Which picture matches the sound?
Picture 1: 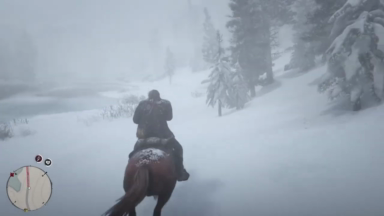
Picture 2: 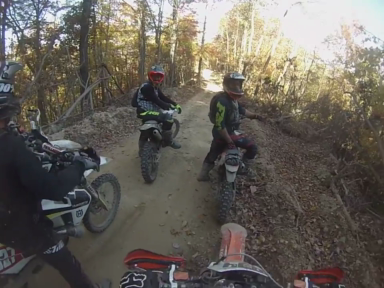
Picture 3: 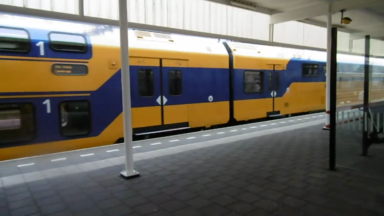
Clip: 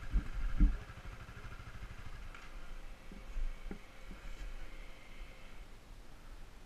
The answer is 2